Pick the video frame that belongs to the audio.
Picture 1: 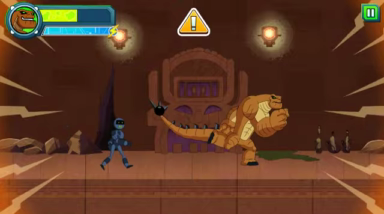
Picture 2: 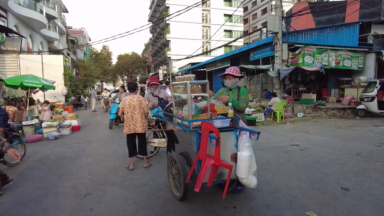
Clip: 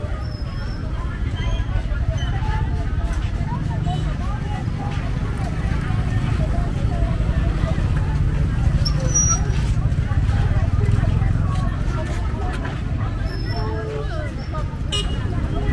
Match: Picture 2